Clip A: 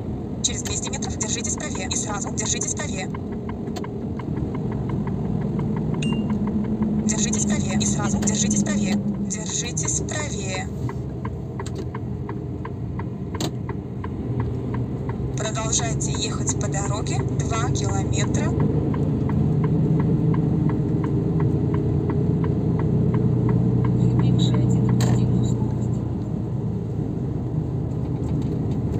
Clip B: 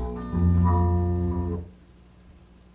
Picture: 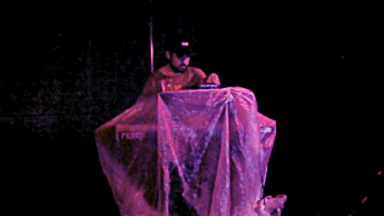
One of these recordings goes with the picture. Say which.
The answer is B